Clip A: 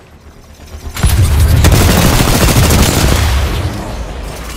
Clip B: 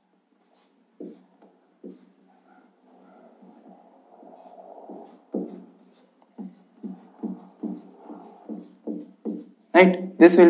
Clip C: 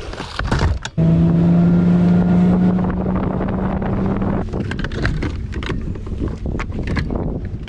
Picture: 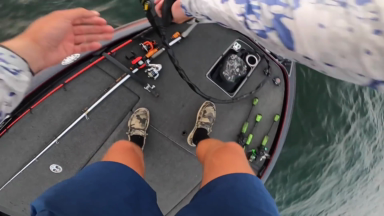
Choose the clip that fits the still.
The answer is C